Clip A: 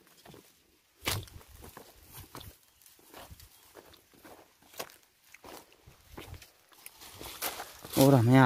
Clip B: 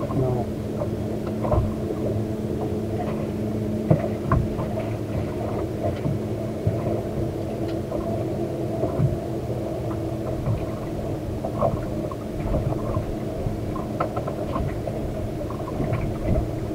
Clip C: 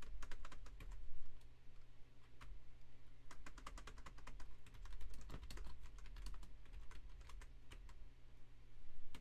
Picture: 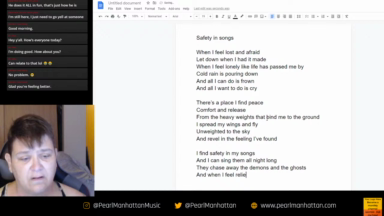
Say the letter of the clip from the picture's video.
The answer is C